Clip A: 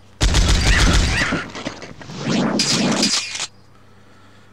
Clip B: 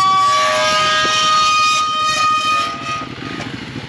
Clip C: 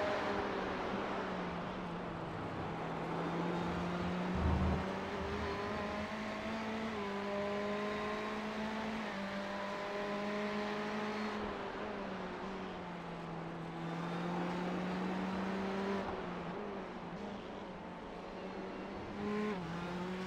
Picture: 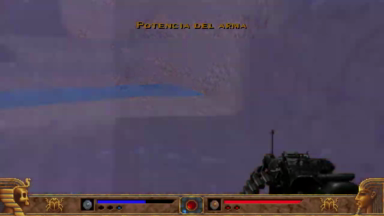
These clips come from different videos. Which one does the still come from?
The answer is A